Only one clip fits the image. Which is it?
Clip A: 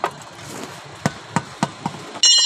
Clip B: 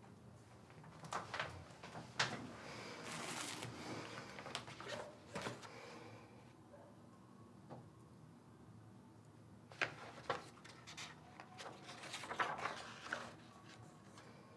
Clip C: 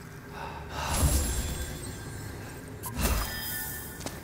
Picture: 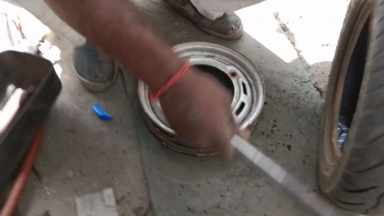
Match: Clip A